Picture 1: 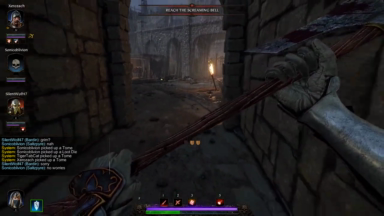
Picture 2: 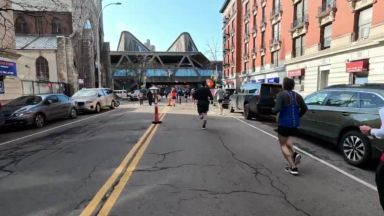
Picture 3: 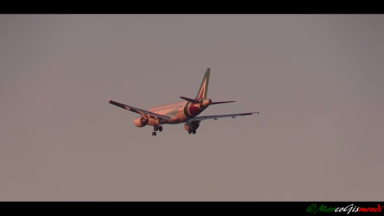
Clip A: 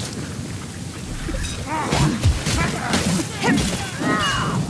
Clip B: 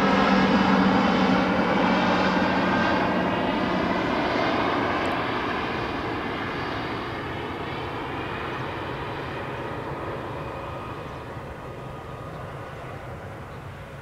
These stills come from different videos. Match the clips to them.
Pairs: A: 1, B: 3